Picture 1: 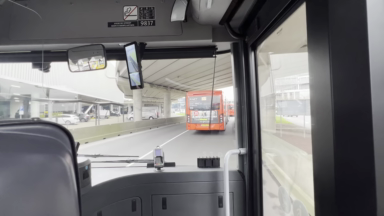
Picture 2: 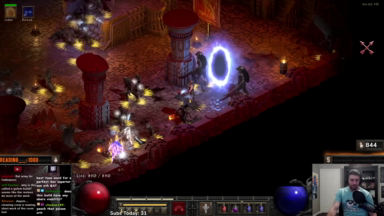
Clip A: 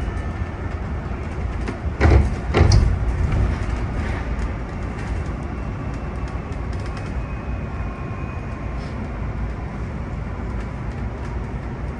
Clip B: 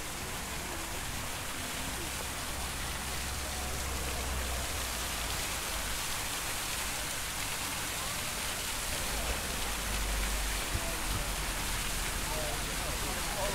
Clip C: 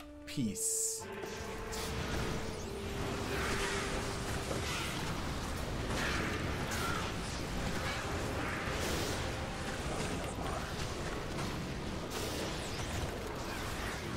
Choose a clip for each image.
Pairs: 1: A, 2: C